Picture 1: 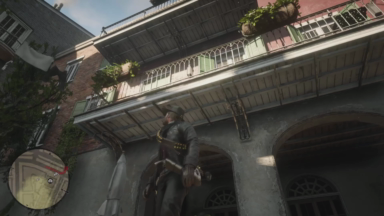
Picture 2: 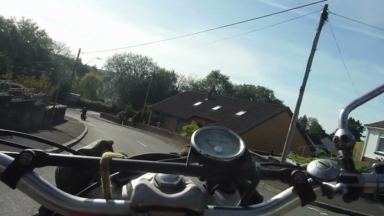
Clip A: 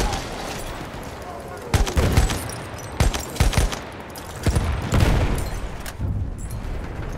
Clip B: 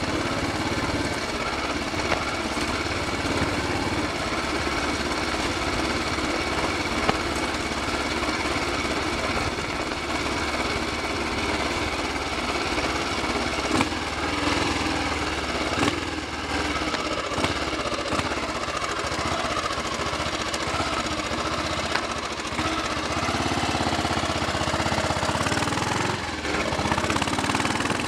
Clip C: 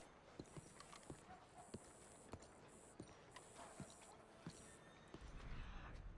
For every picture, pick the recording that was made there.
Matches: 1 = C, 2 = B